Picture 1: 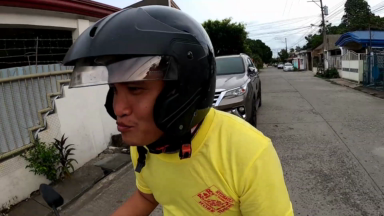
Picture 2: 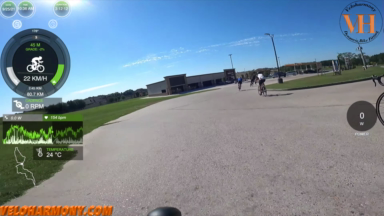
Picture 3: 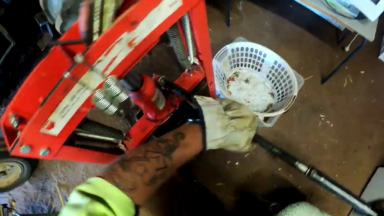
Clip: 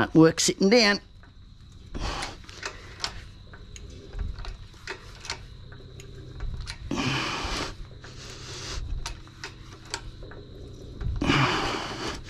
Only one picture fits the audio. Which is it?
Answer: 3